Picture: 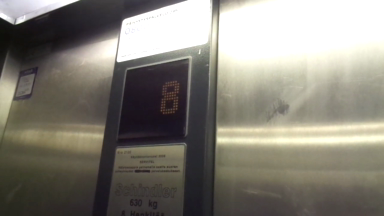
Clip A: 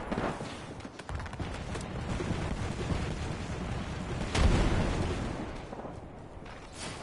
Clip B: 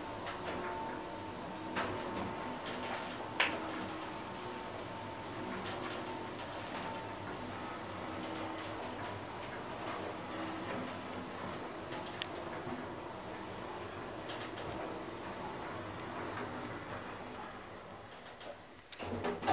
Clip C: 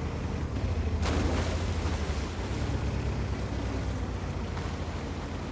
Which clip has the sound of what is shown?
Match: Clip B